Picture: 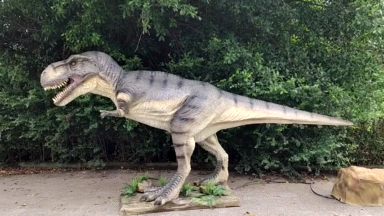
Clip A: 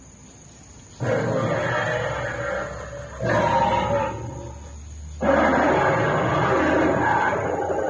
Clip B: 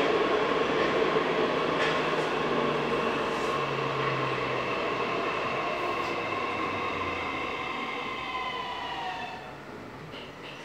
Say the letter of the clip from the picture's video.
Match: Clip A